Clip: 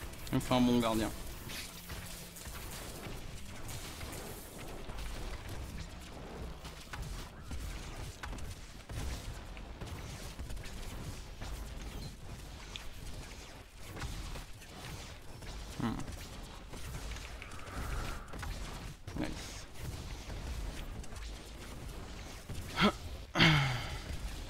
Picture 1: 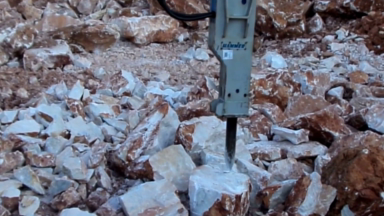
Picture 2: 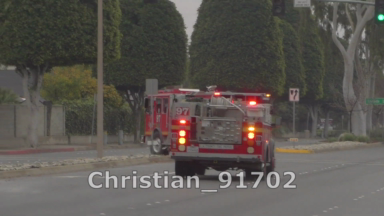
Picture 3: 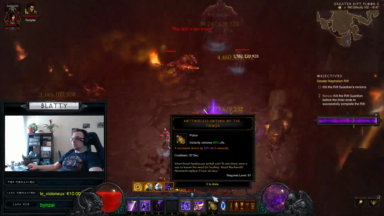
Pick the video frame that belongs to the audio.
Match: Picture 3